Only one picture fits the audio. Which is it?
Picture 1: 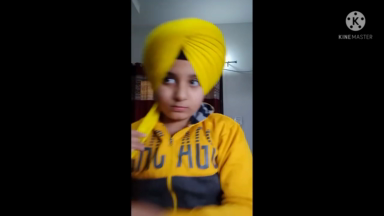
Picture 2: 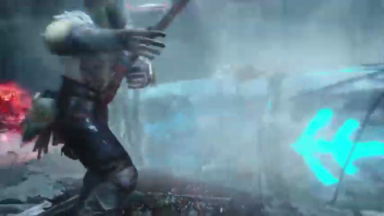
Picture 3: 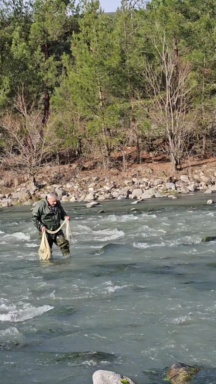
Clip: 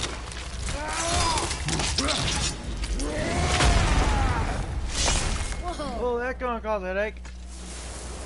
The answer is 2